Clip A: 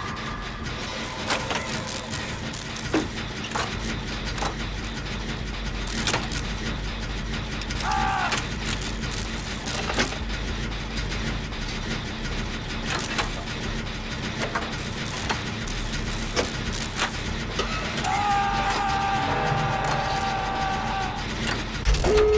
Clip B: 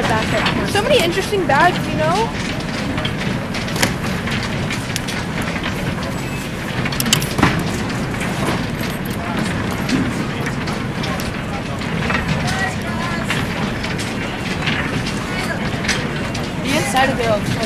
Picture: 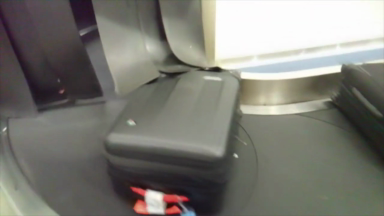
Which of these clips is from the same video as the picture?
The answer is B